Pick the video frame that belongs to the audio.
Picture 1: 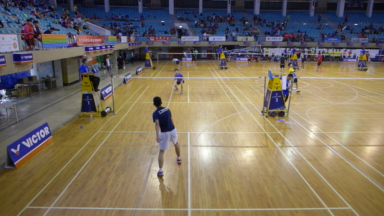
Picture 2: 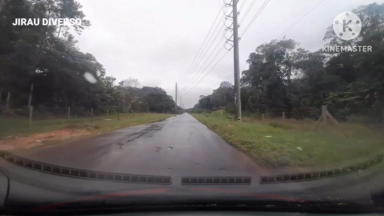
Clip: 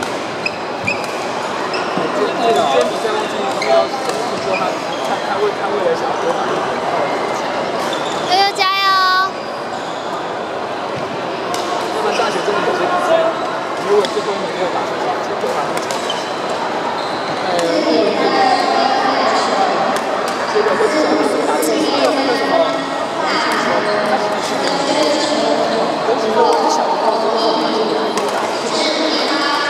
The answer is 1